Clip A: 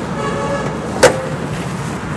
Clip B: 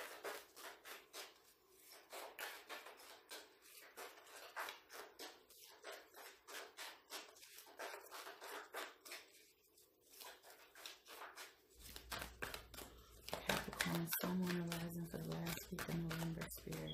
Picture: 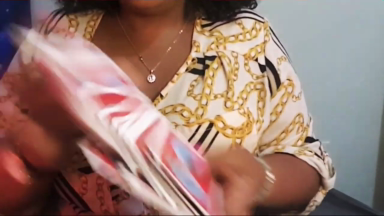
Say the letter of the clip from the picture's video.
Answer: B